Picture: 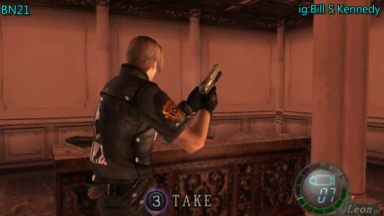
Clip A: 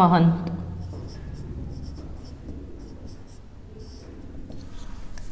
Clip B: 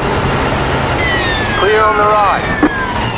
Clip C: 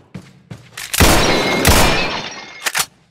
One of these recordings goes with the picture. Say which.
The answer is C